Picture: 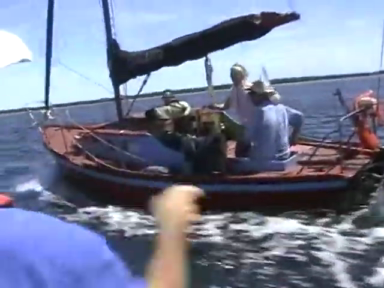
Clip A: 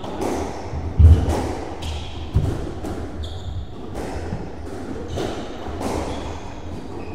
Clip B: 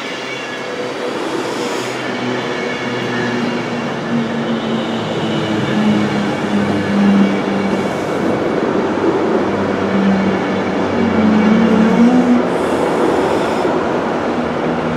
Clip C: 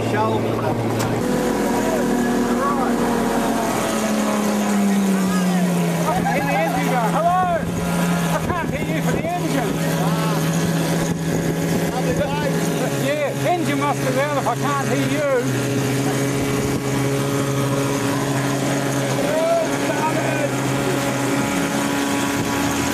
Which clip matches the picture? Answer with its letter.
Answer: C